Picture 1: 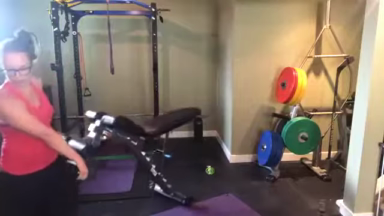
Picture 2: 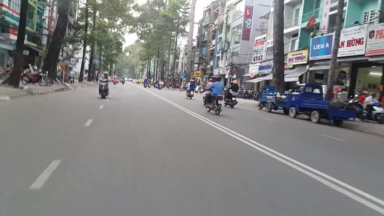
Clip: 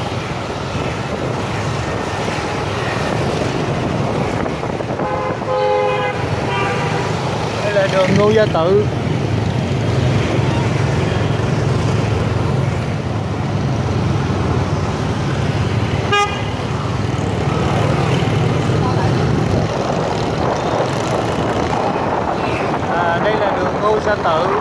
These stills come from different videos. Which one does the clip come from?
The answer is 2